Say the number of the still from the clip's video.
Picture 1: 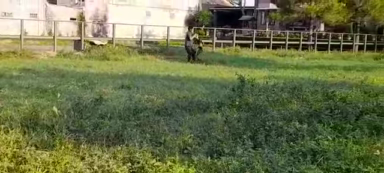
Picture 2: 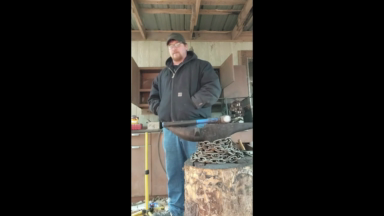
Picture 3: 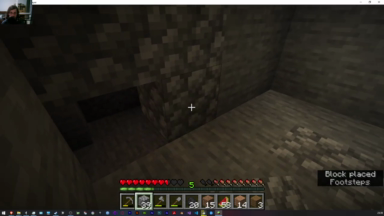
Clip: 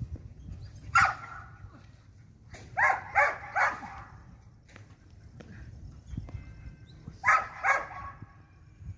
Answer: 1